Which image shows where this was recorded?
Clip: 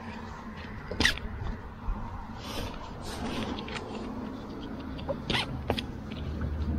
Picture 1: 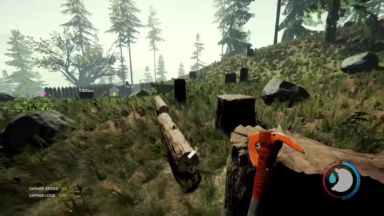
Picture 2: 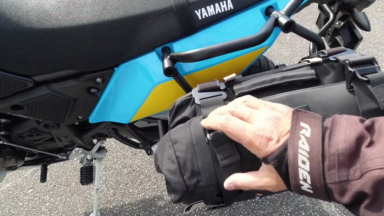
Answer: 2